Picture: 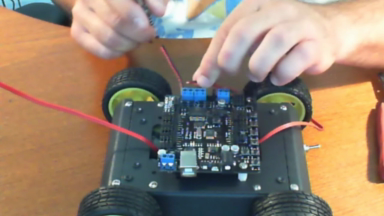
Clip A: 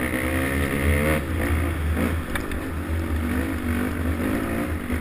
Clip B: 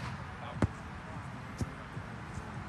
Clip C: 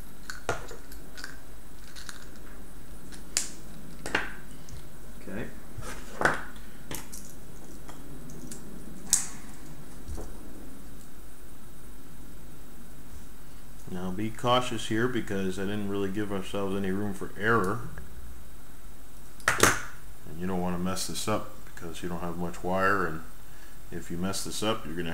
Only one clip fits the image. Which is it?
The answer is C